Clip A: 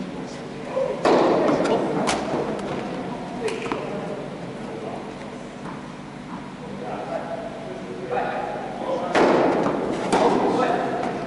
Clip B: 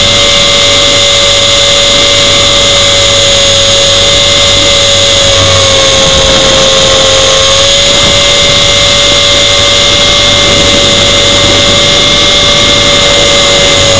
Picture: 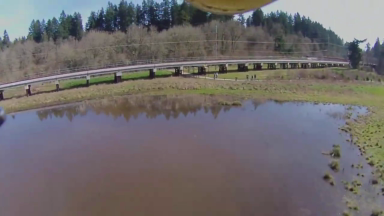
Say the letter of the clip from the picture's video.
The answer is B